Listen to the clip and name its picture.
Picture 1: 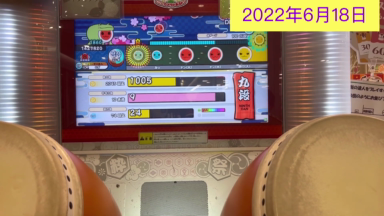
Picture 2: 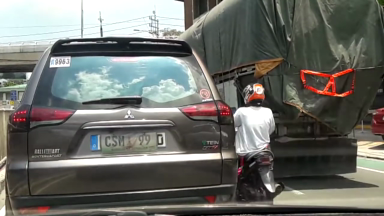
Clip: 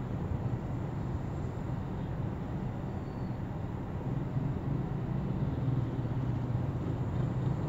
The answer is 2